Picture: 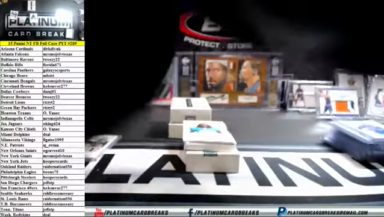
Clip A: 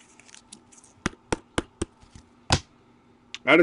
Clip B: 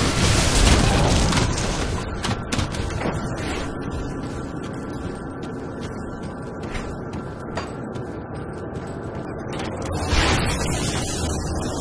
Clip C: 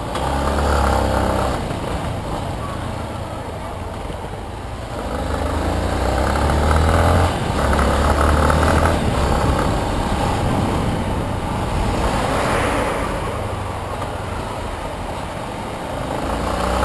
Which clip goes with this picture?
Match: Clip A